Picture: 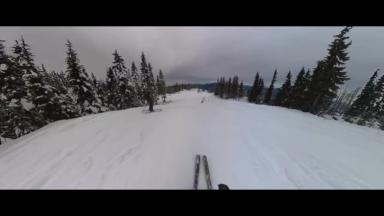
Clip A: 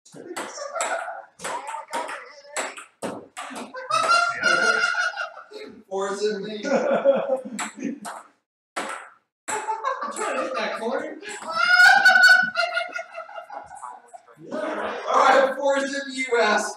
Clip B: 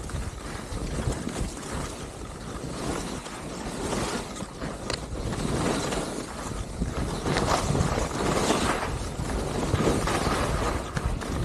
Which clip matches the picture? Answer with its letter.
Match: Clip B